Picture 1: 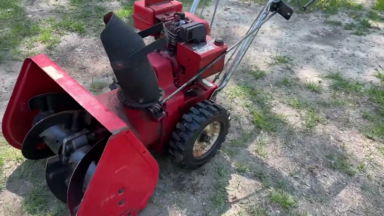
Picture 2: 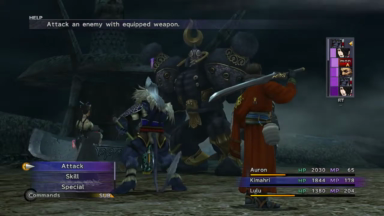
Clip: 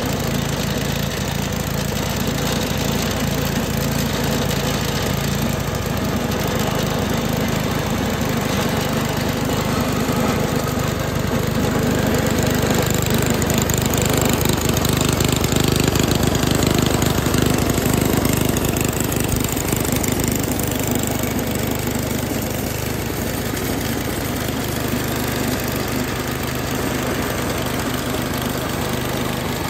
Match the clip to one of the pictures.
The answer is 1